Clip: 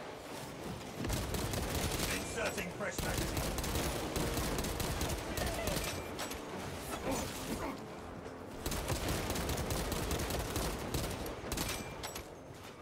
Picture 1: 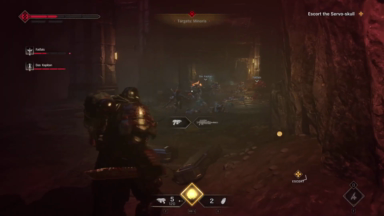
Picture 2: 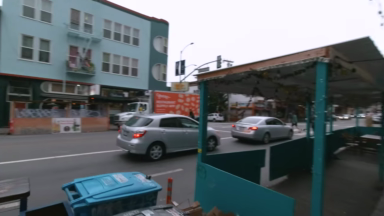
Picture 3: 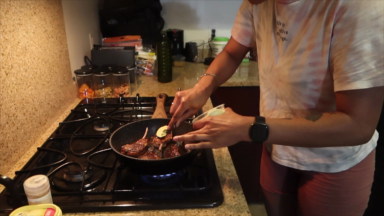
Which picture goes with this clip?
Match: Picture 1